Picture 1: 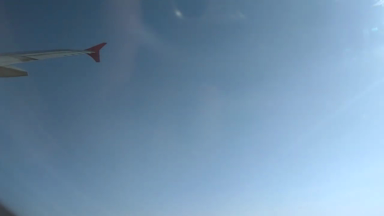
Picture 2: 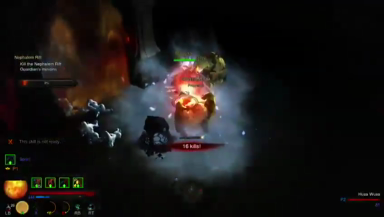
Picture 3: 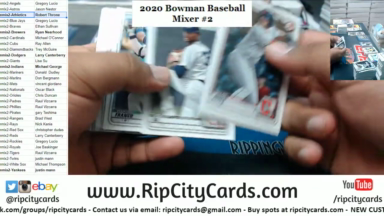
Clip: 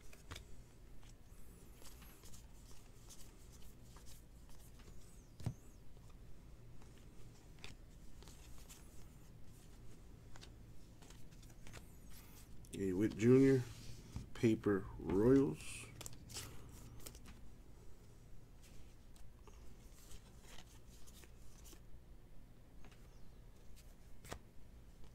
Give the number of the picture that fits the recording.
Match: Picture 3